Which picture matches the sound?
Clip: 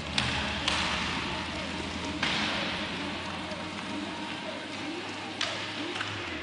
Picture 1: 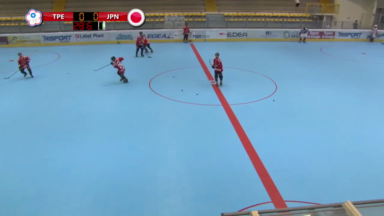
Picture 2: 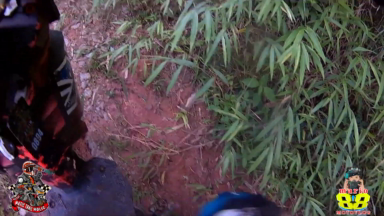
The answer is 1